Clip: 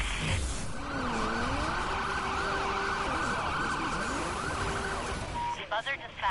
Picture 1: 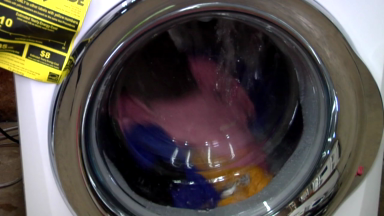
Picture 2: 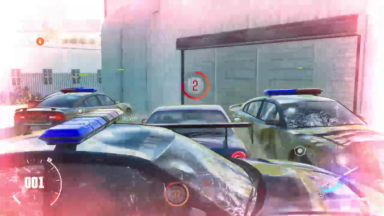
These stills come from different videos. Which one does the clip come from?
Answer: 2